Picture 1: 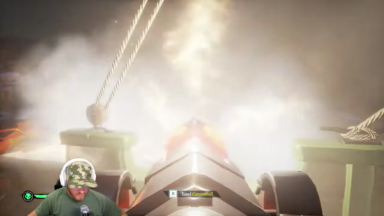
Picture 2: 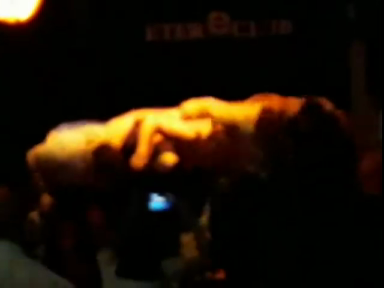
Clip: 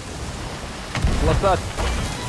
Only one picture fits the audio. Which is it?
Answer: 1